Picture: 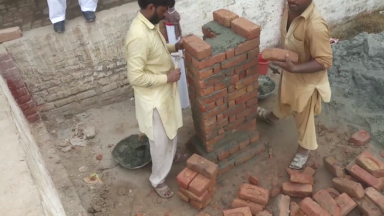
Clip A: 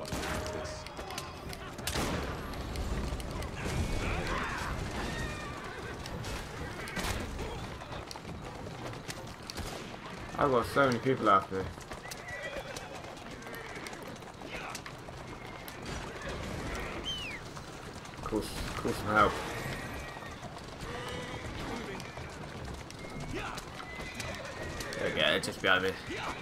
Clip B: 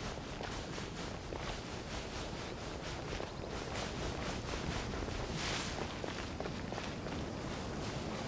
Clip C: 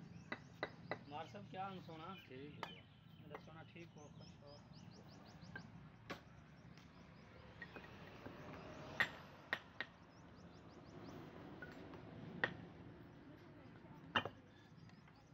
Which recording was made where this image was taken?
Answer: C